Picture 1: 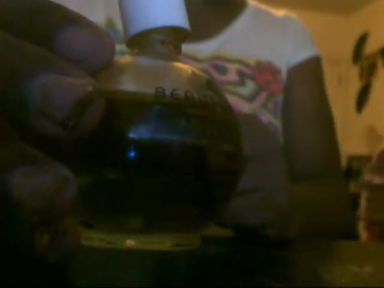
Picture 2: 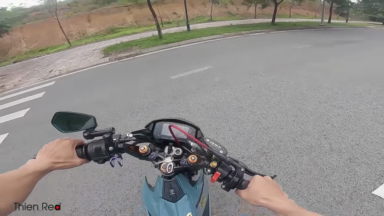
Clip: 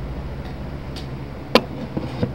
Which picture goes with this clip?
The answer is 1